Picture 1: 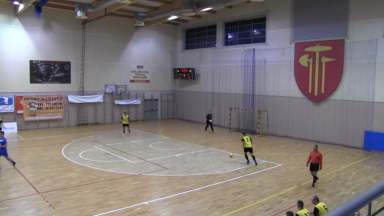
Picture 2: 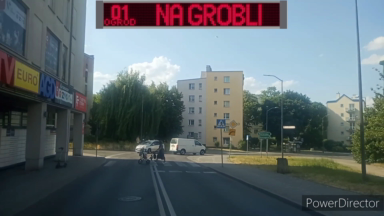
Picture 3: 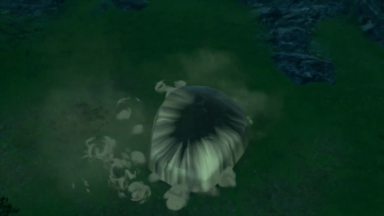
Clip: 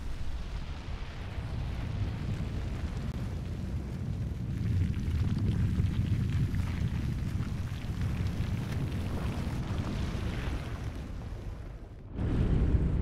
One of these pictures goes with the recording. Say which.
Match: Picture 3